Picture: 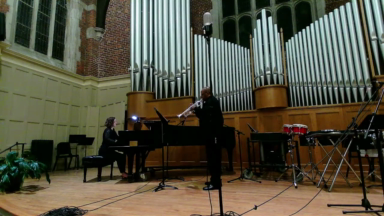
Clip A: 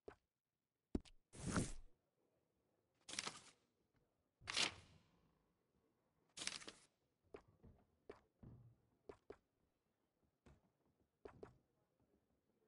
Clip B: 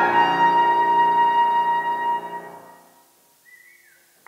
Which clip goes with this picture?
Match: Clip B